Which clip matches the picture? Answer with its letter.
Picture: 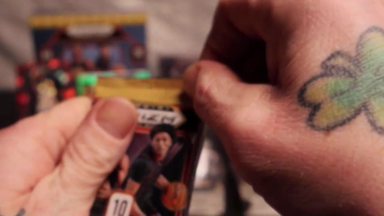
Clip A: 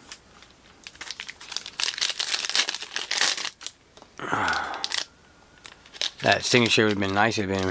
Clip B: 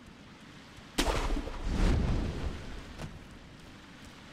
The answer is A